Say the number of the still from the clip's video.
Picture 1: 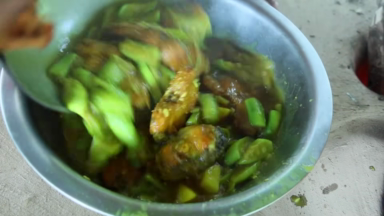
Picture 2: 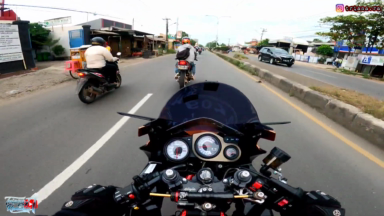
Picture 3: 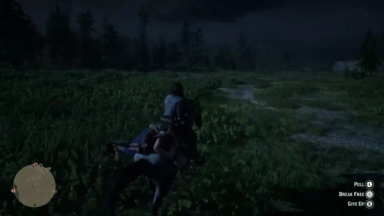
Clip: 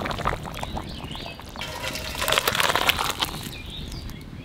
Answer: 1